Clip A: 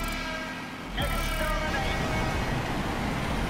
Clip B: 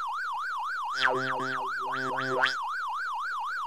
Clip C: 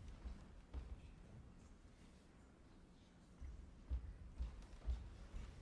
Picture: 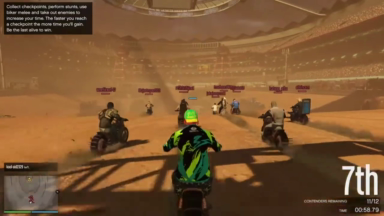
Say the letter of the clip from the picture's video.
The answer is A